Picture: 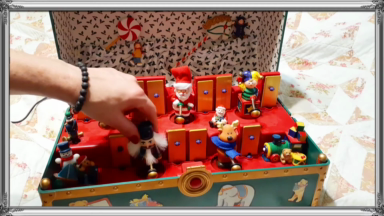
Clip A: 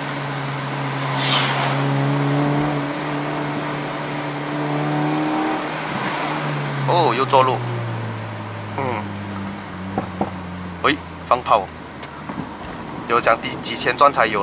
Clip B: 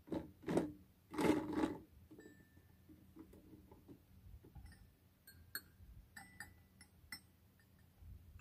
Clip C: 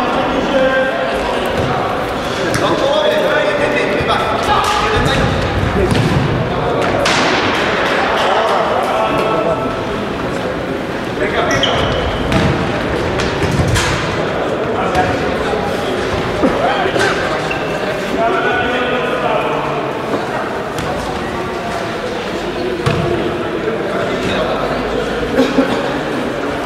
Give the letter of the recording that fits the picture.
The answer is B